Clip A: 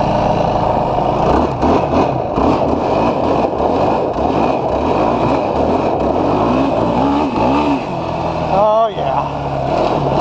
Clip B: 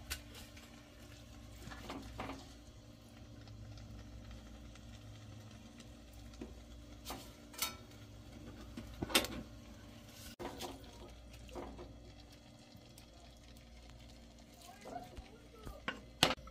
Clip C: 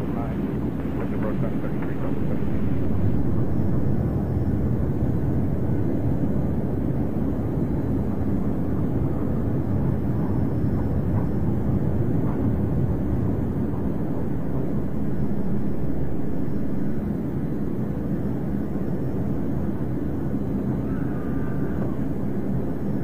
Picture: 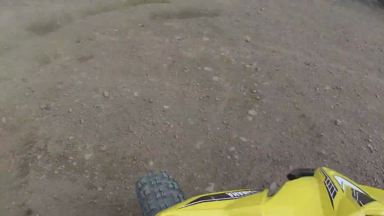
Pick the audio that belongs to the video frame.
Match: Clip A